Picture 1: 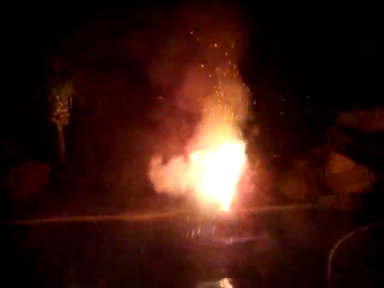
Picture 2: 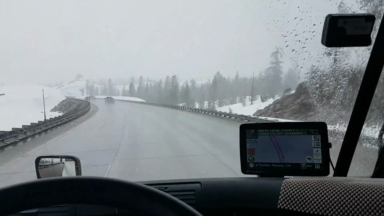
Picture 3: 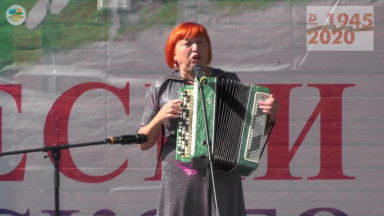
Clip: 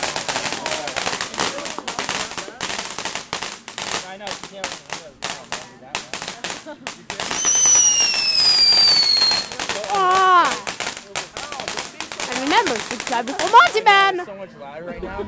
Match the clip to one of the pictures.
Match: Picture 1